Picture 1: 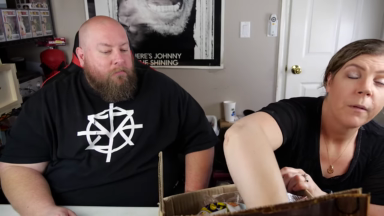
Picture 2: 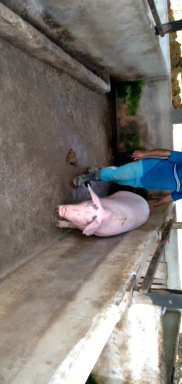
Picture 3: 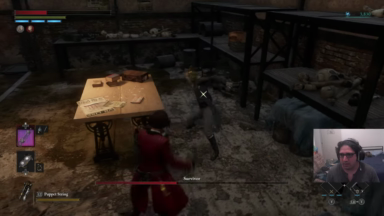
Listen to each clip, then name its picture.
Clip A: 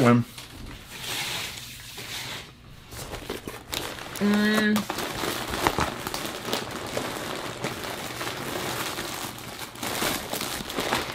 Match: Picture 1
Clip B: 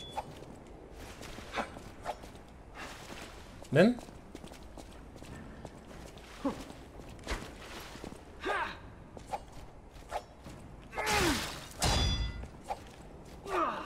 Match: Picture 3